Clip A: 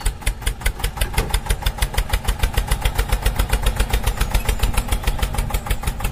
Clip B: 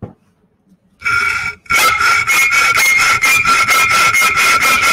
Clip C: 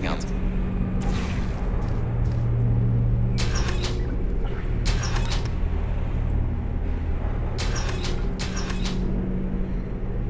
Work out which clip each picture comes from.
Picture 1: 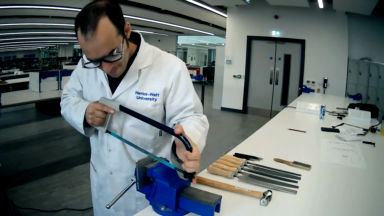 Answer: B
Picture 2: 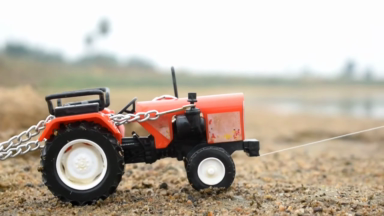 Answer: A